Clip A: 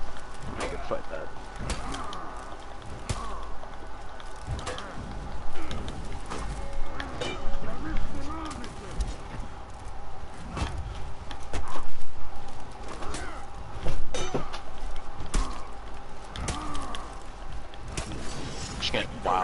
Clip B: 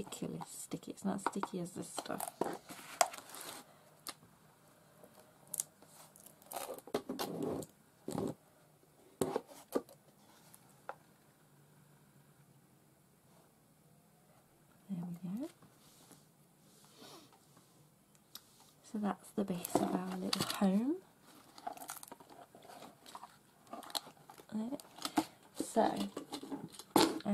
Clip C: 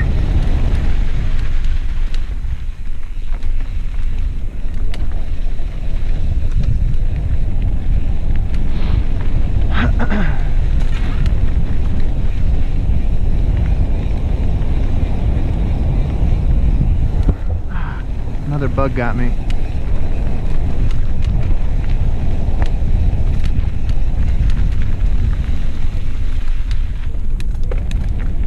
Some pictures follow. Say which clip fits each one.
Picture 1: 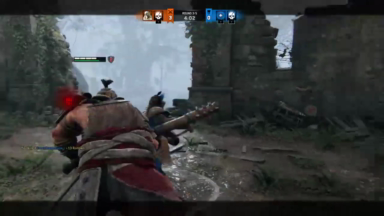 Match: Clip A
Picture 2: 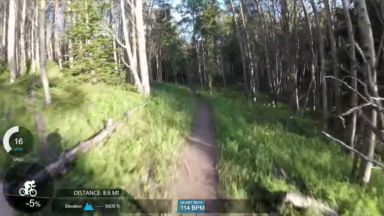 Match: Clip C